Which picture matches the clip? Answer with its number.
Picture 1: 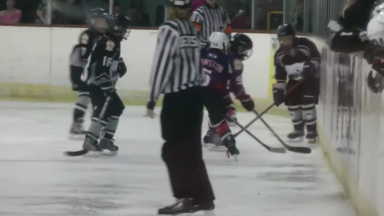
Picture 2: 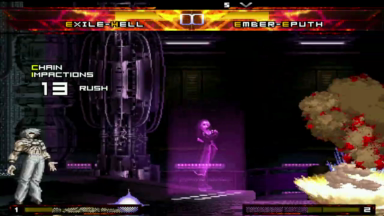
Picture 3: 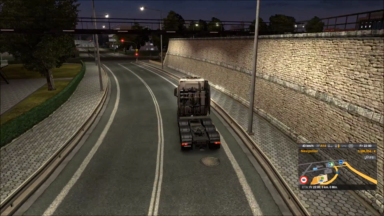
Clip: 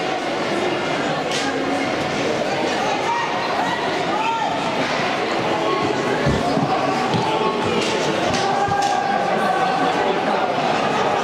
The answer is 1